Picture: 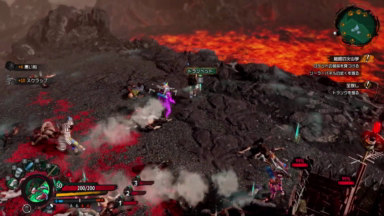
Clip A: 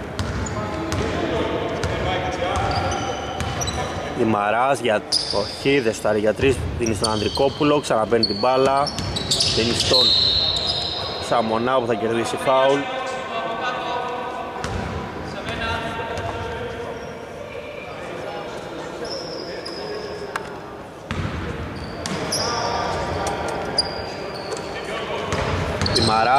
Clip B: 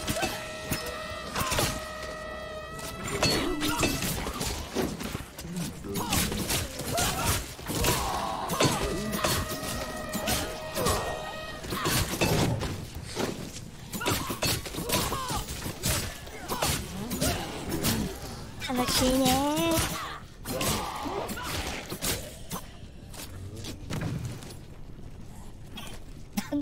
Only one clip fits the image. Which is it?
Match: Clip B